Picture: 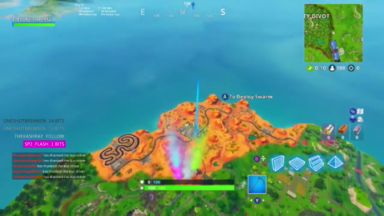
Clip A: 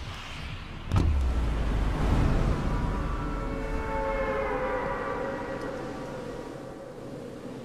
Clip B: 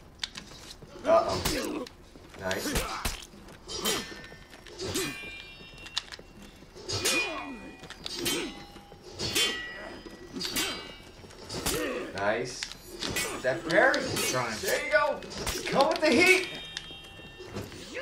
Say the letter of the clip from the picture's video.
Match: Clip A